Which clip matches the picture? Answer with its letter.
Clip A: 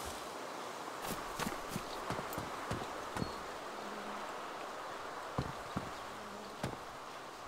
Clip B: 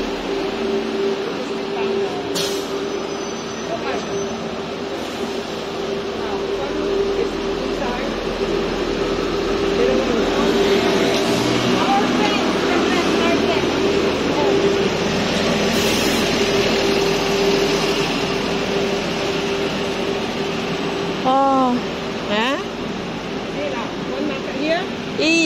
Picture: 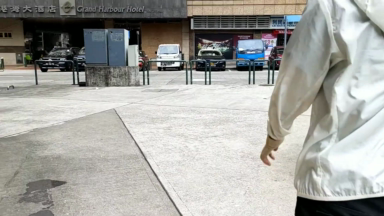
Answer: B